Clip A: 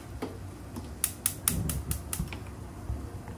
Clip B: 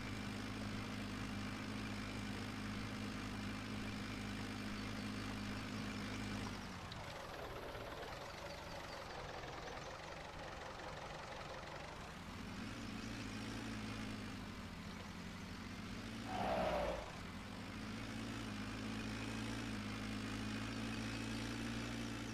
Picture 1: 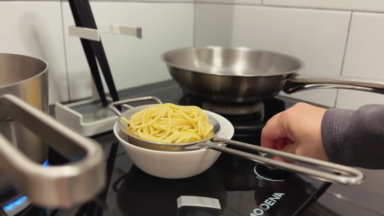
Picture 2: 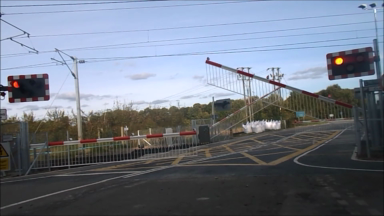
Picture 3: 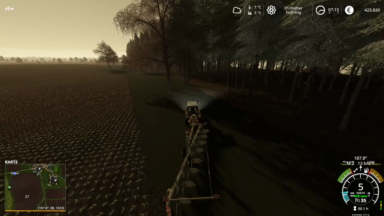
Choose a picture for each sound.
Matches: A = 1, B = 3